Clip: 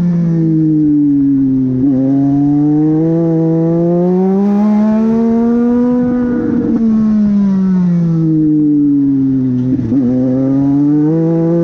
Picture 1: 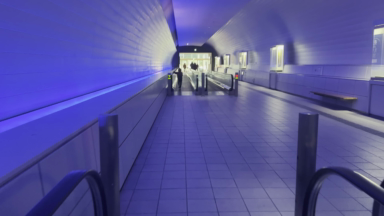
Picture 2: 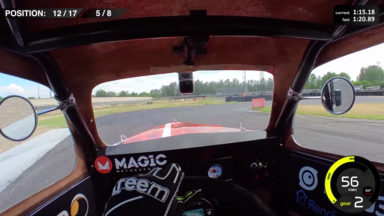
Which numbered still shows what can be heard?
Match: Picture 2